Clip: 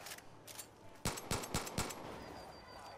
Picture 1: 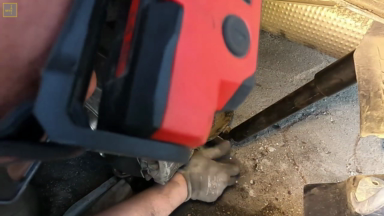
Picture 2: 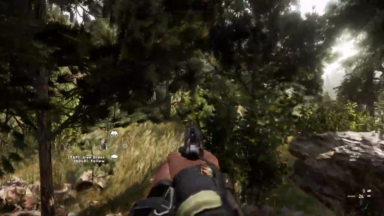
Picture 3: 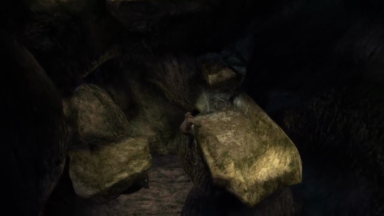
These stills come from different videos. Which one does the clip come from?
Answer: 2